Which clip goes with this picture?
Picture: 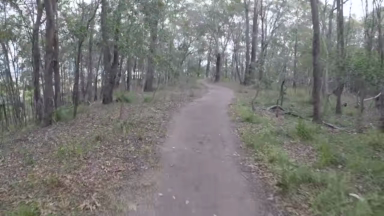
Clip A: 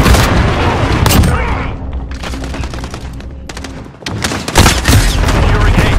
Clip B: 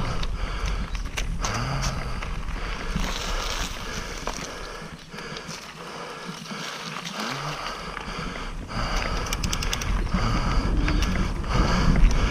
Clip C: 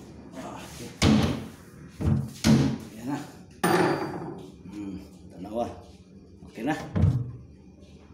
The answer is B